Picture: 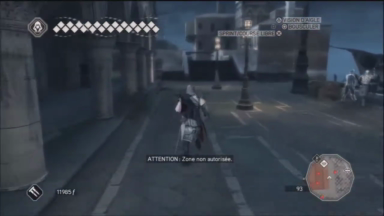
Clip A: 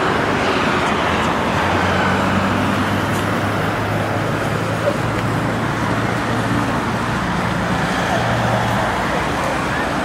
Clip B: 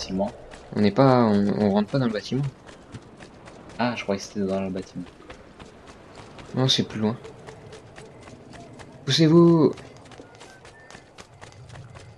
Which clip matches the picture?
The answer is B